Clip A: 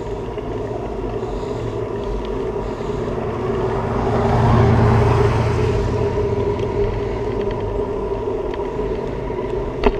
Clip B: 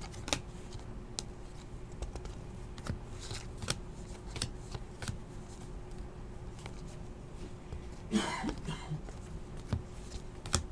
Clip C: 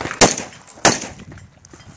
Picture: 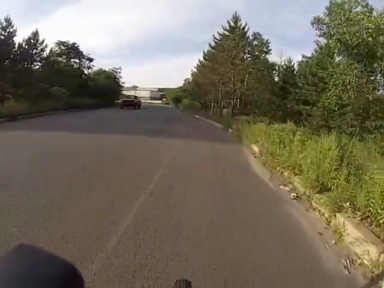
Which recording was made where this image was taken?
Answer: A